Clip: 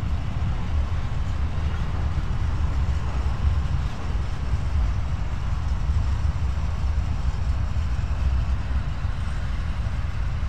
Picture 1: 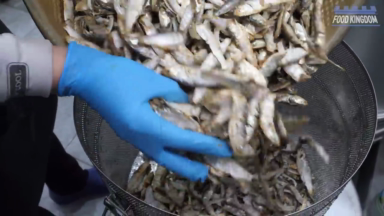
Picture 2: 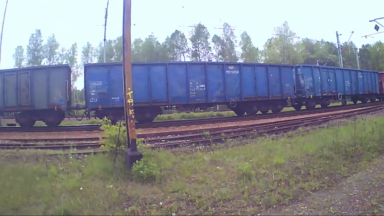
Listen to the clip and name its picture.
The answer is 2